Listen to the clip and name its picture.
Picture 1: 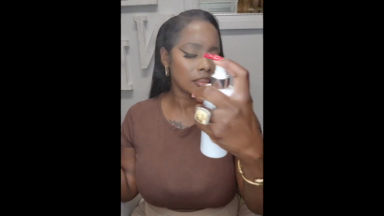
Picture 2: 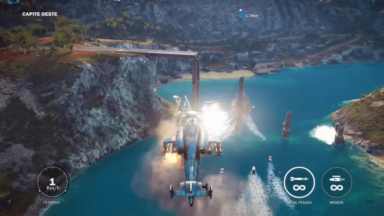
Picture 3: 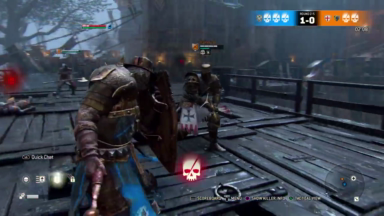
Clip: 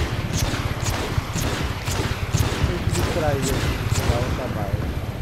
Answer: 2